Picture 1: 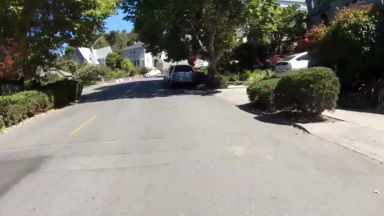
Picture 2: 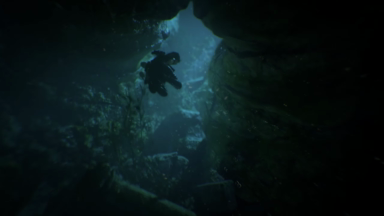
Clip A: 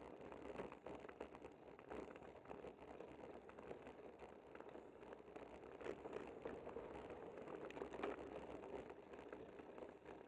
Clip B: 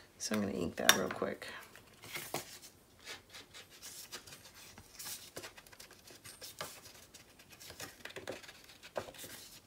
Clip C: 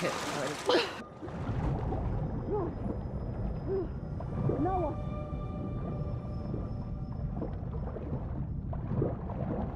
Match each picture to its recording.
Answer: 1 A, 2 C